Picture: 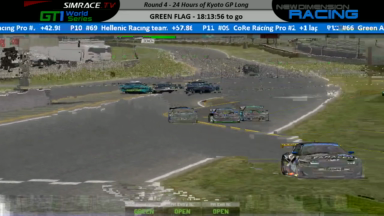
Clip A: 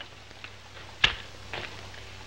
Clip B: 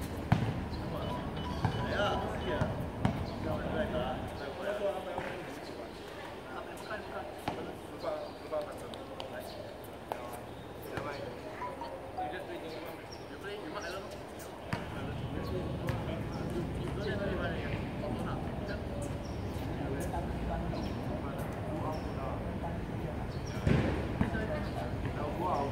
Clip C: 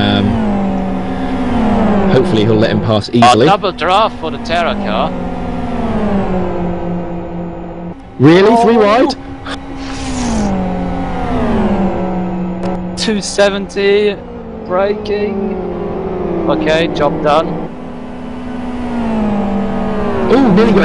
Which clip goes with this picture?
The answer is C